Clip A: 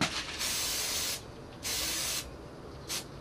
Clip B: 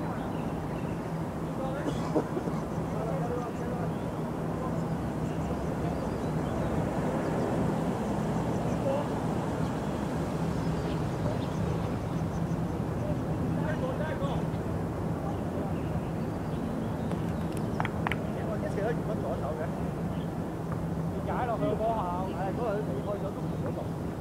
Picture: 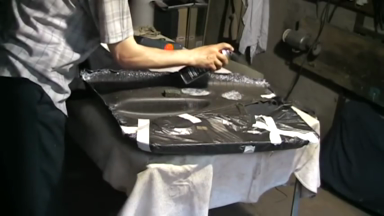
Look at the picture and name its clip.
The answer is A